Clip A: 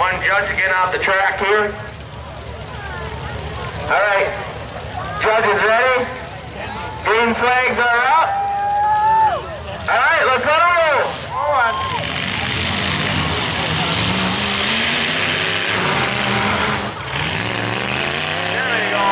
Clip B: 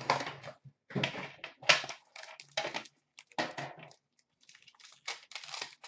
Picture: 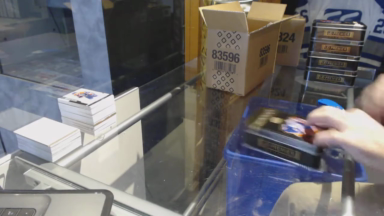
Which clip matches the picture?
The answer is B